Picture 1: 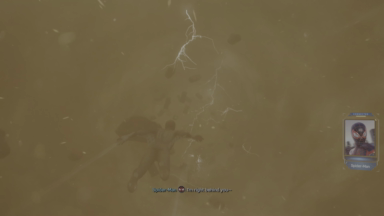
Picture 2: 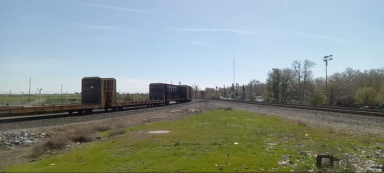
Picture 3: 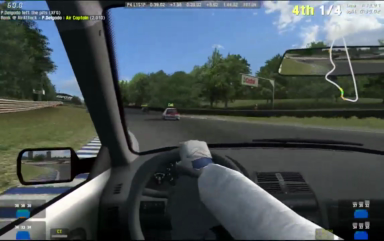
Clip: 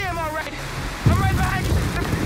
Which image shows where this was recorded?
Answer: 1